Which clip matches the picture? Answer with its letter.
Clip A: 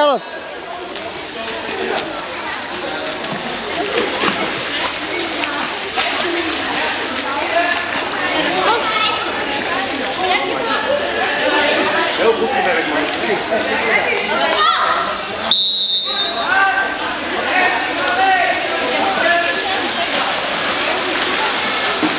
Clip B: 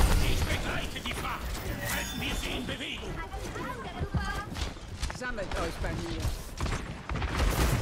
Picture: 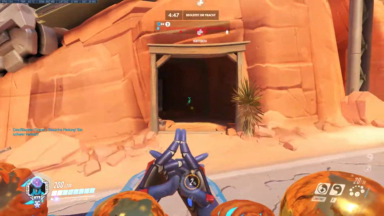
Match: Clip B